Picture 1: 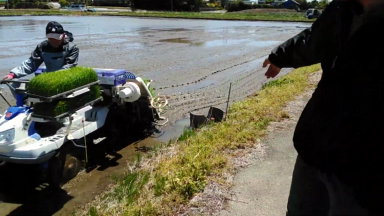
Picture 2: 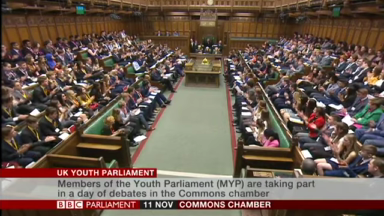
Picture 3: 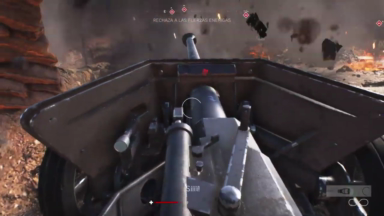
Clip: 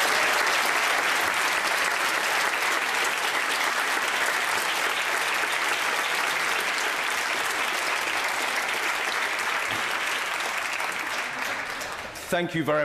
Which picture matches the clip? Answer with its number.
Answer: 2